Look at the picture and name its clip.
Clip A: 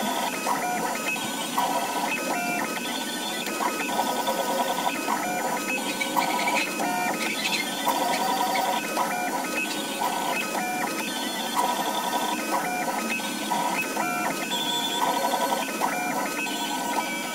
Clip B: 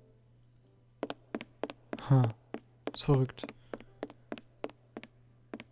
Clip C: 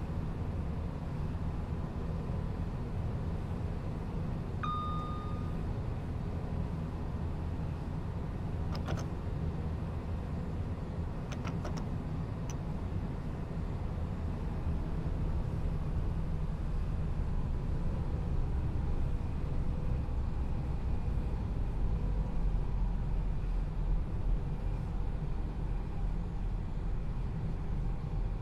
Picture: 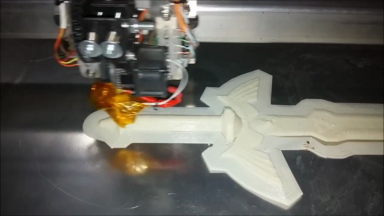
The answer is A